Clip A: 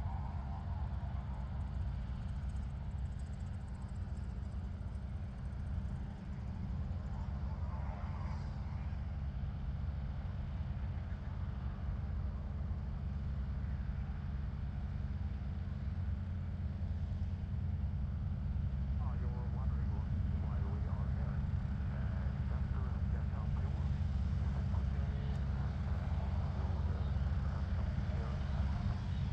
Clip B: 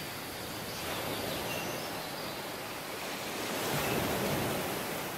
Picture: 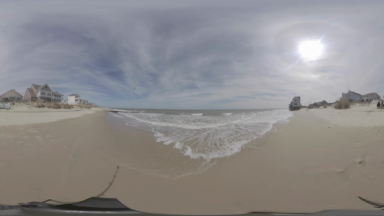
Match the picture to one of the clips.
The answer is B